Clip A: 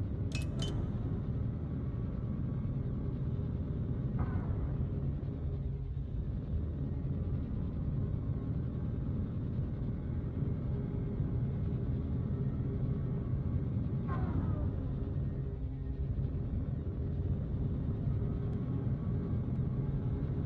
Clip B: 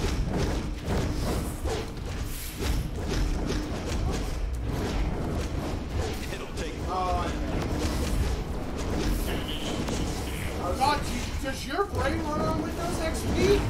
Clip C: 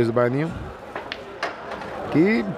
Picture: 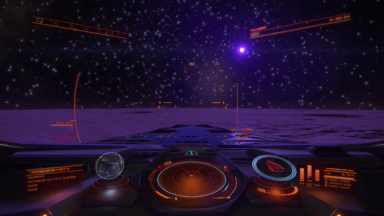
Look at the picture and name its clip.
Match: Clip A